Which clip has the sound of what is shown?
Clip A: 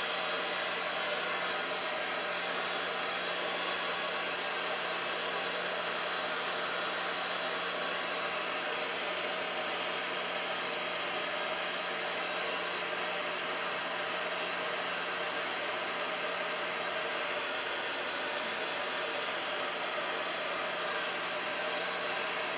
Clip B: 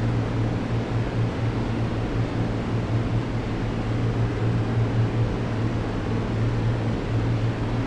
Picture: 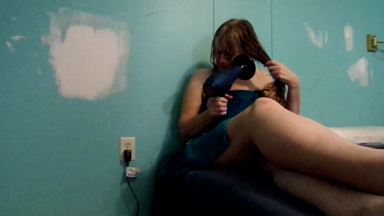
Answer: A